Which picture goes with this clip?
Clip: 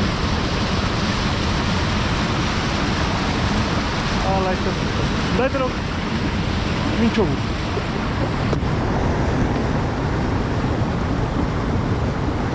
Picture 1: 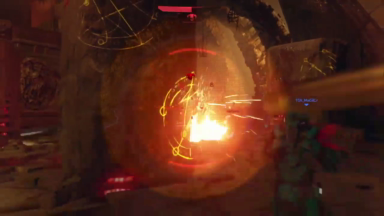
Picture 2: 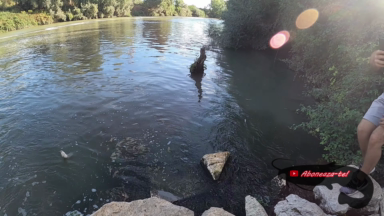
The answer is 2